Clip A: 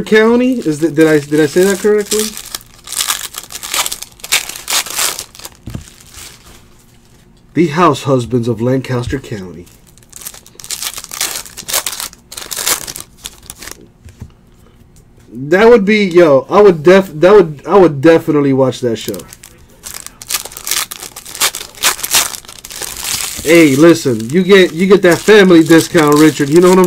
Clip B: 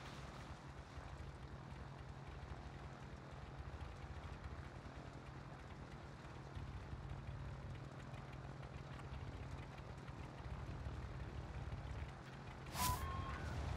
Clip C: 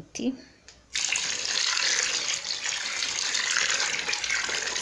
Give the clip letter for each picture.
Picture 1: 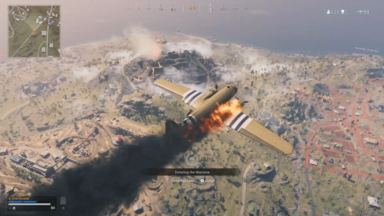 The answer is B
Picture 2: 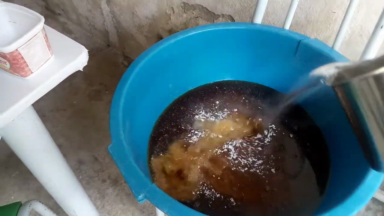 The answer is C